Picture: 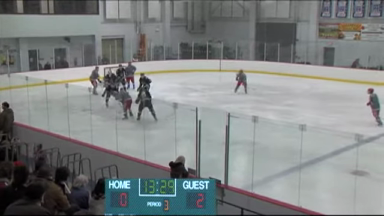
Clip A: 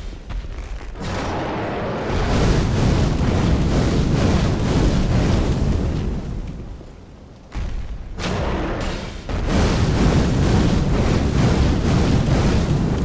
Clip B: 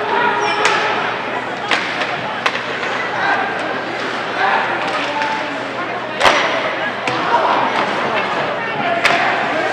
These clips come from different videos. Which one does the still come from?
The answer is B